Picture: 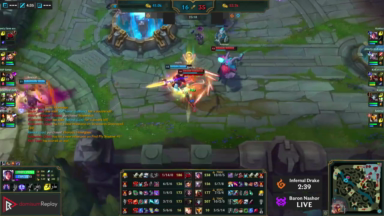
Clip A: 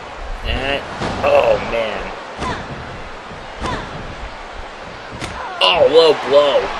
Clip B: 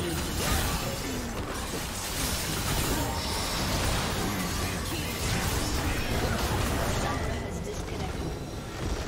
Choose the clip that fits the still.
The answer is B